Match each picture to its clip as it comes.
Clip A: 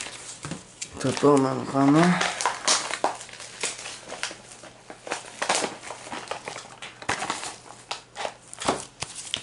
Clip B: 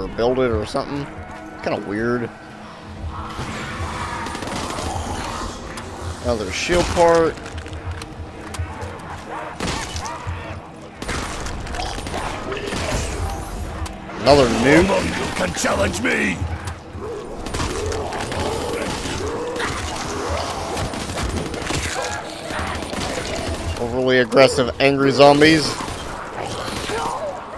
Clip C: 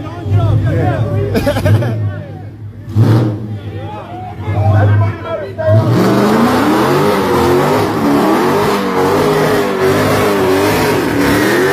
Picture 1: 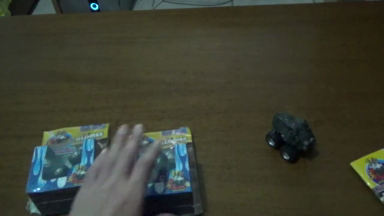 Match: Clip A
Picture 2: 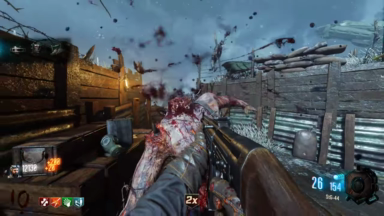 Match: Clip B